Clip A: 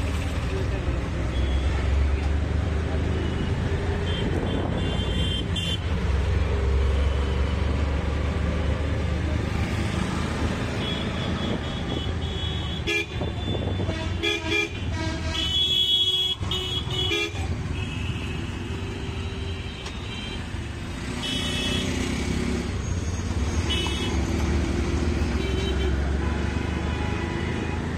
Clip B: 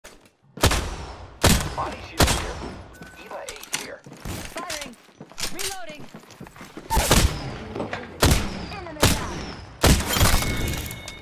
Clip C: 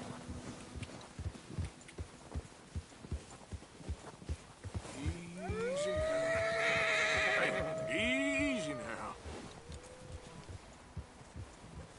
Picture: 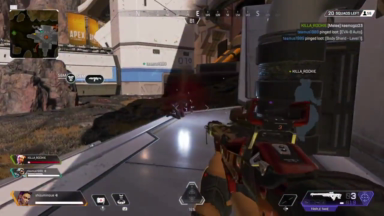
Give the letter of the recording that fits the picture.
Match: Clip B